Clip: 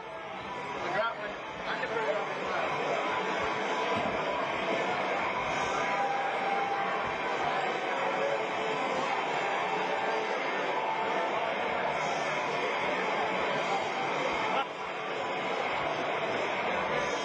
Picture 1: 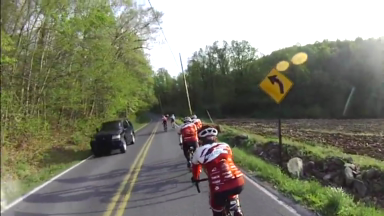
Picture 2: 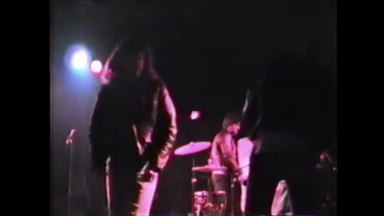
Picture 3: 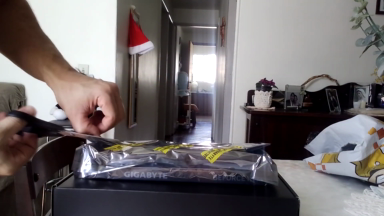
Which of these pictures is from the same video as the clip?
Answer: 2